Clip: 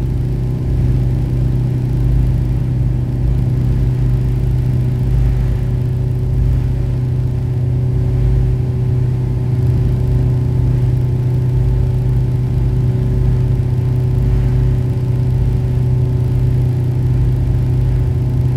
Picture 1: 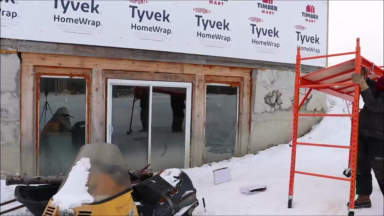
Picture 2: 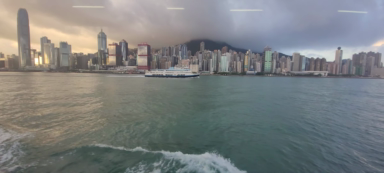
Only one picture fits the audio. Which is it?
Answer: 2